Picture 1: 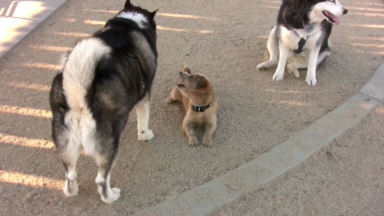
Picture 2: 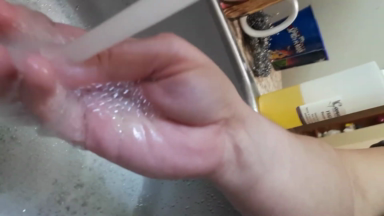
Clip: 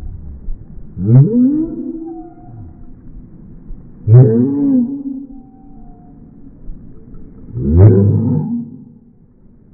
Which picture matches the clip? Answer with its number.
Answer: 1